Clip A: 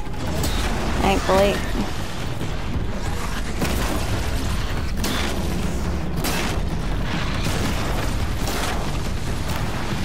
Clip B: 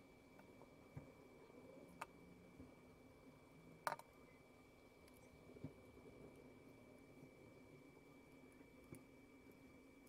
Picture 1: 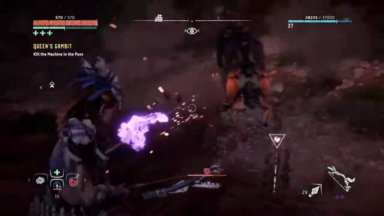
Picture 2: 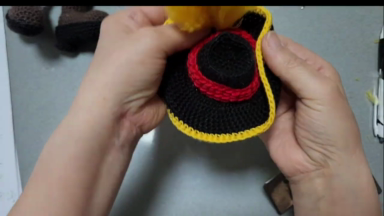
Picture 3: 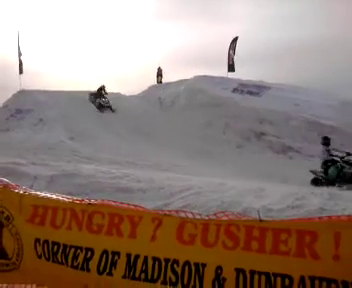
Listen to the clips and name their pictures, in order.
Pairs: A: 1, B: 2